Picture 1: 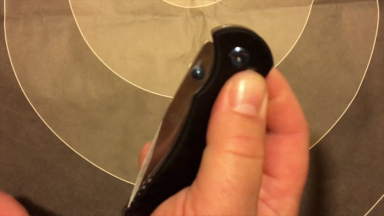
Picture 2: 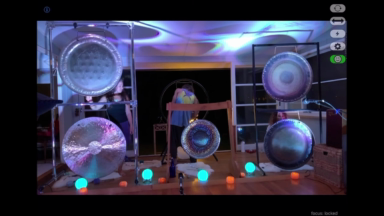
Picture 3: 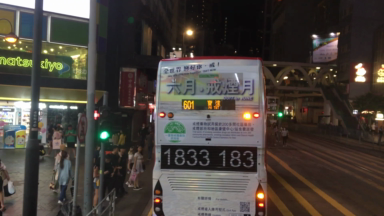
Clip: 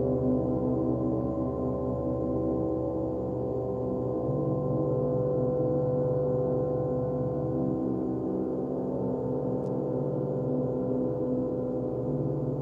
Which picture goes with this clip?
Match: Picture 2